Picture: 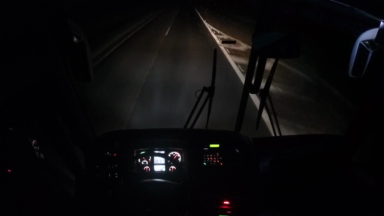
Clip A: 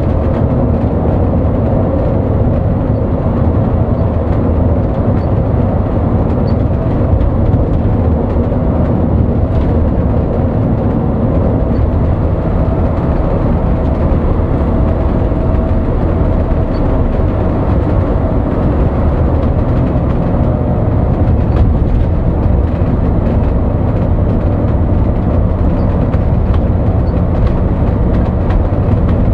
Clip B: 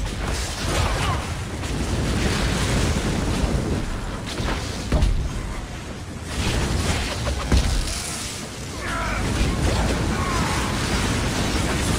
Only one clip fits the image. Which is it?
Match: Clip A